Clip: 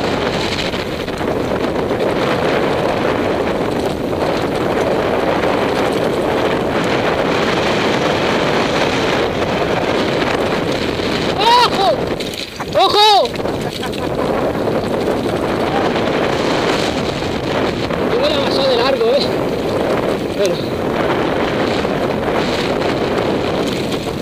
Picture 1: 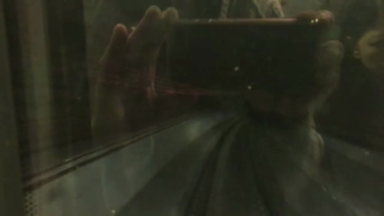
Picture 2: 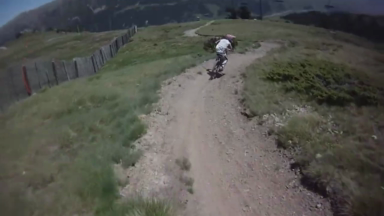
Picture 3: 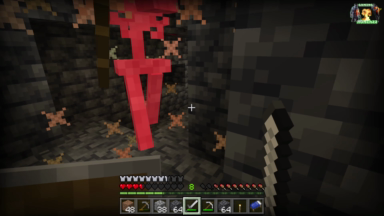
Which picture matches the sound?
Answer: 2